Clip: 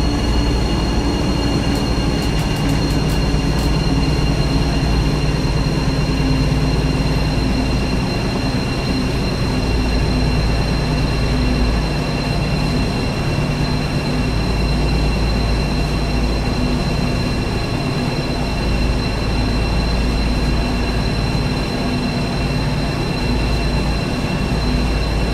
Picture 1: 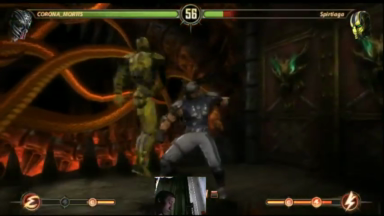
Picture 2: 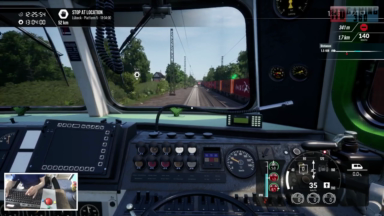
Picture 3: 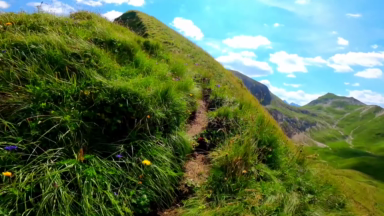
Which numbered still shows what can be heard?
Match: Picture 2